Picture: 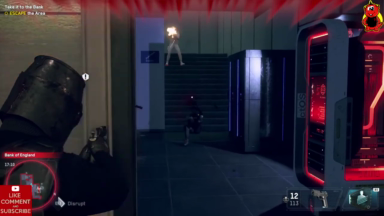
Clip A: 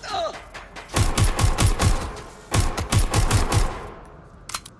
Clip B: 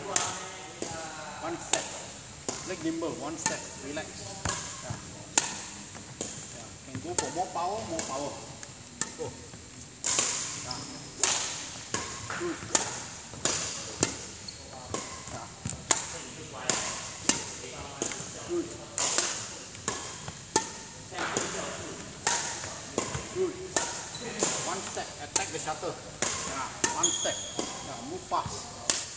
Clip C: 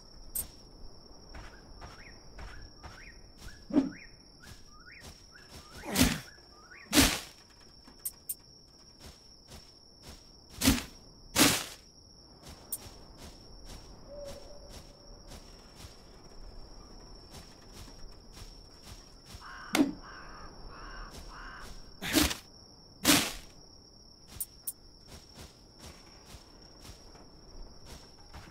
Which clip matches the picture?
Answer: A